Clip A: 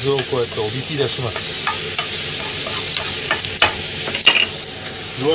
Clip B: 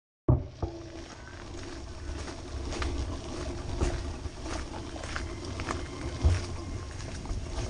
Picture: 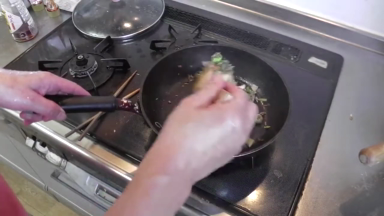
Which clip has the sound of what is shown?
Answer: A